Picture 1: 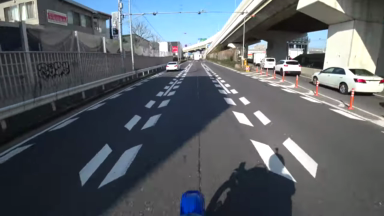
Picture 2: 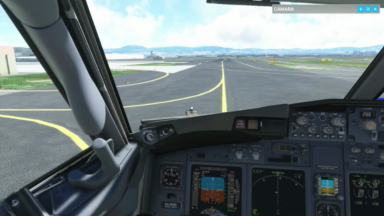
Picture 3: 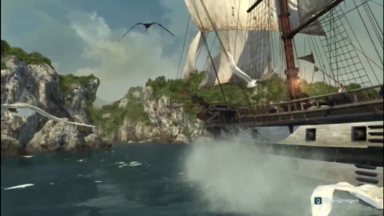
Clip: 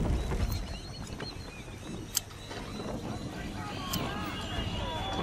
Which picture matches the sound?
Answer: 3